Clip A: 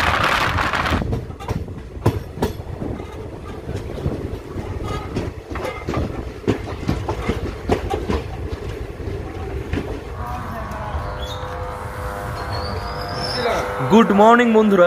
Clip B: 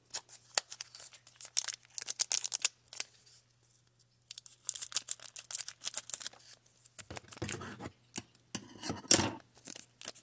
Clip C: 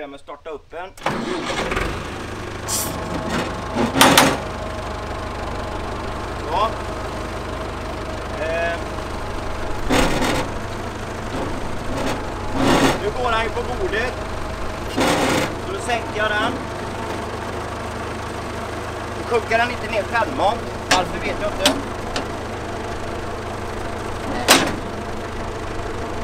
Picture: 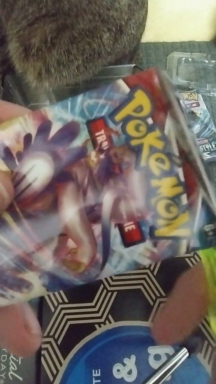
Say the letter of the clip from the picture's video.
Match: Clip B